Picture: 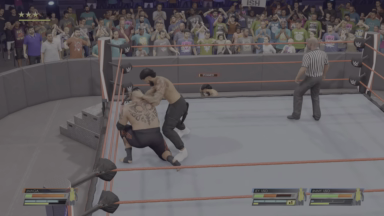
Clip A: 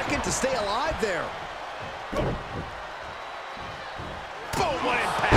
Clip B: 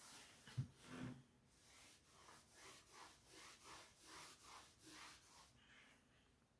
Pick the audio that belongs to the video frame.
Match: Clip A